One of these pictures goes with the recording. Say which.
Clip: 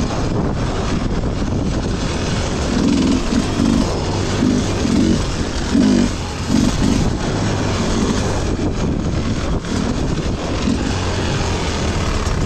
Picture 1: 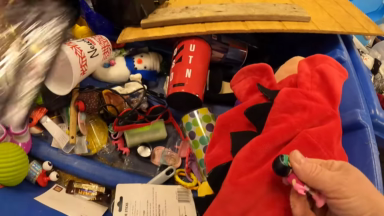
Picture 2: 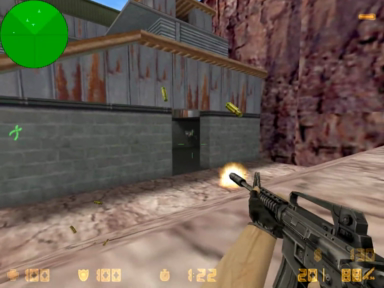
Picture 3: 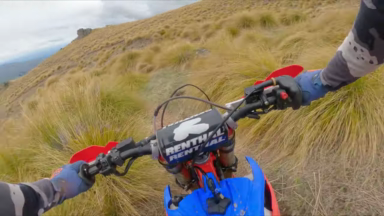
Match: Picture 3